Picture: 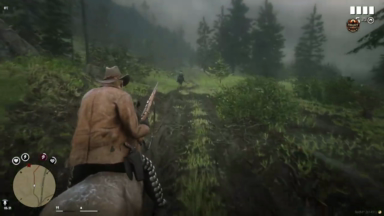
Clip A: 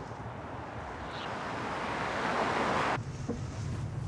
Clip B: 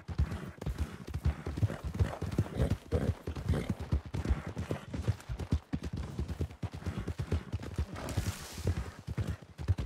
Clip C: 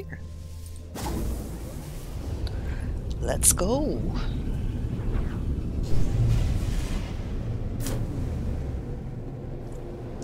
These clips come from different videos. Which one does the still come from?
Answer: B